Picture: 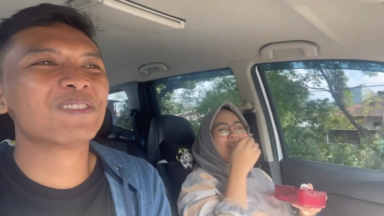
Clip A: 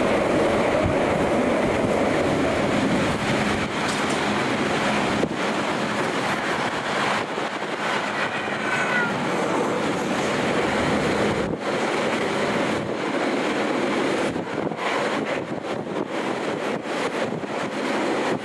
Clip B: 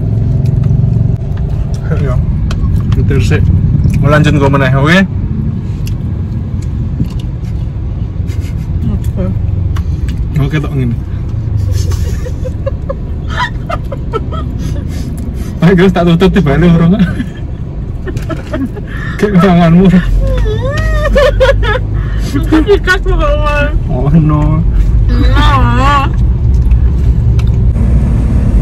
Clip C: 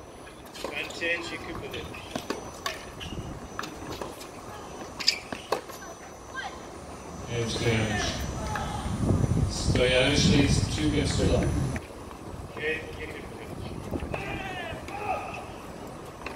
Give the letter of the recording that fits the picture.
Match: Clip B